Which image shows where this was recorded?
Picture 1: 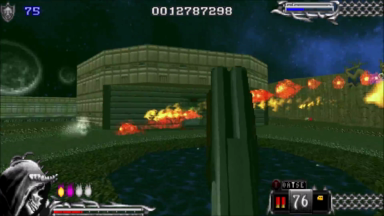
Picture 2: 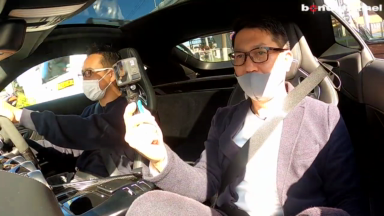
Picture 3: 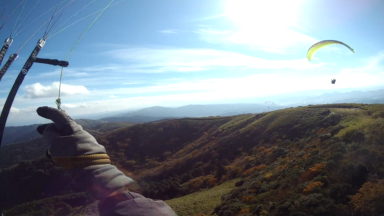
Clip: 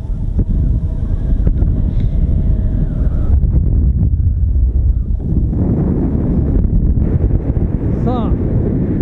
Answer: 3